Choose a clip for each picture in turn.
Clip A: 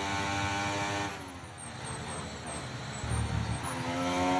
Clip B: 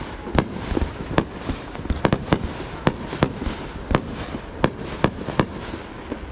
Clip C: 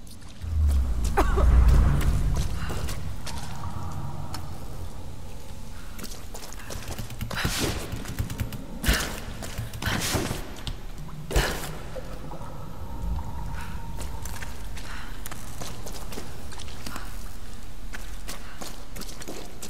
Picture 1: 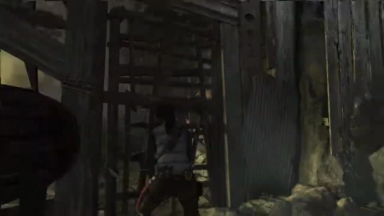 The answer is C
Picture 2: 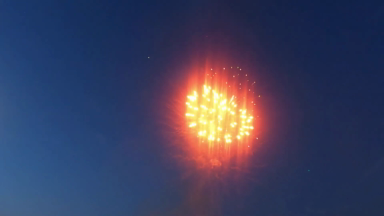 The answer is B